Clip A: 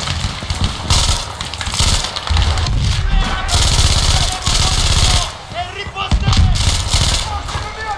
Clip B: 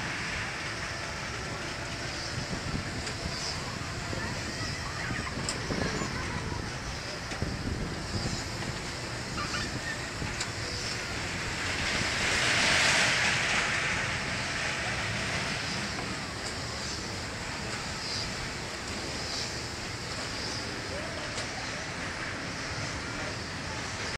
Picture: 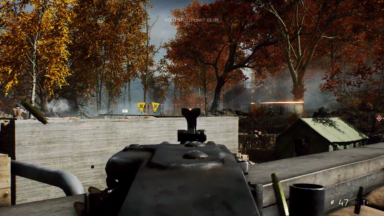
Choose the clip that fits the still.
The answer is A